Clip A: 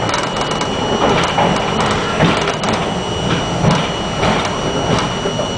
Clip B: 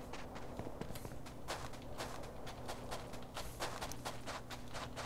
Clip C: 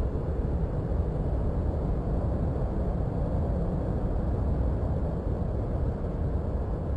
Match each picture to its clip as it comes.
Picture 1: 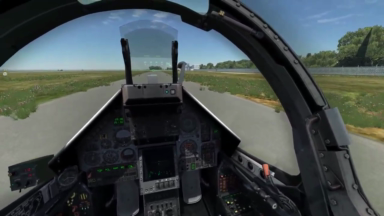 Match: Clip C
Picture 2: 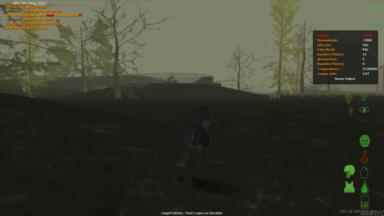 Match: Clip B